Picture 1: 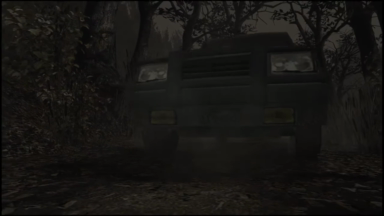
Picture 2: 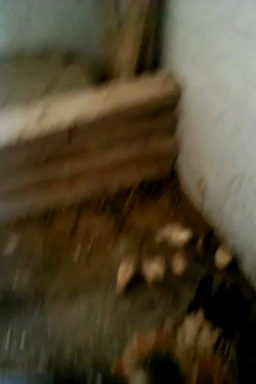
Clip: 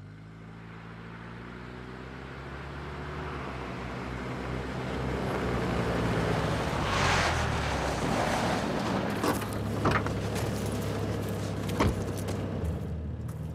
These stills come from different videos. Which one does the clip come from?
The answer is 1